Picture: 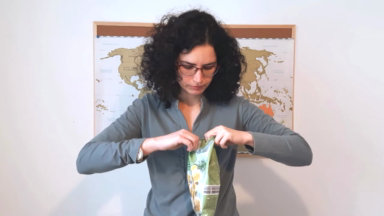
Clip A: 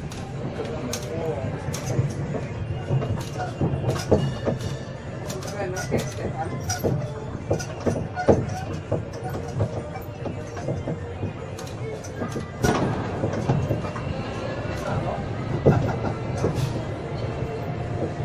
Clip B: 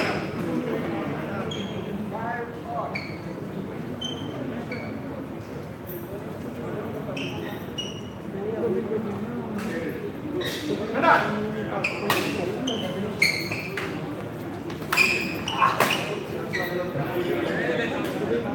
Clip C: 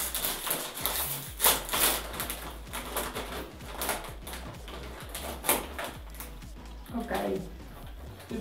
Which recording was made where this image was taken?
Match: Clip C